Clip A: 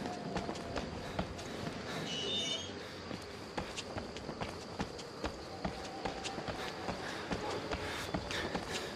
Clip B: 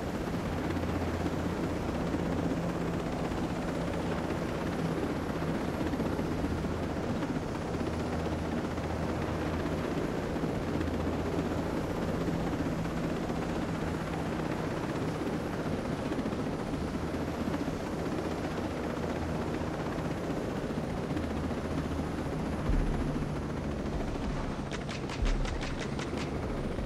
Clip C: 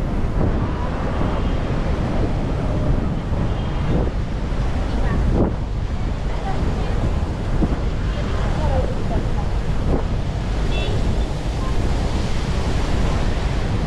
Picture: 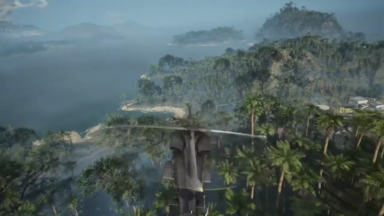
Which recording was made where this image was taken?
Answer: B